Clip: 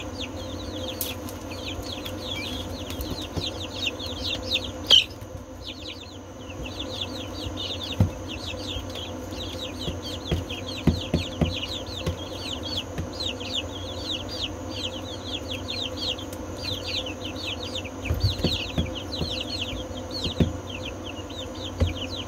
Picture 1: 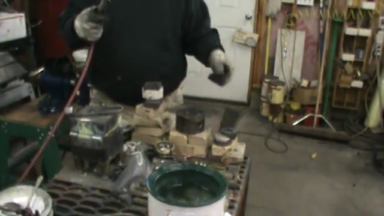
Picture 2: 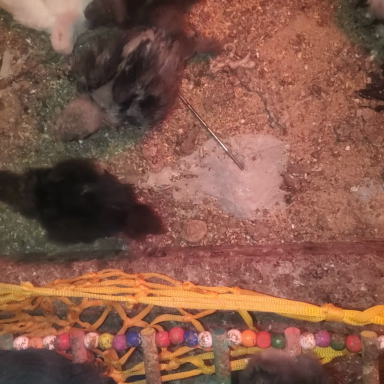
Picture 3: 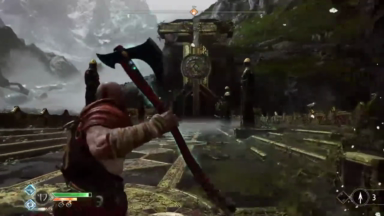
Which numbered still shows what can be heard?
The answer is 2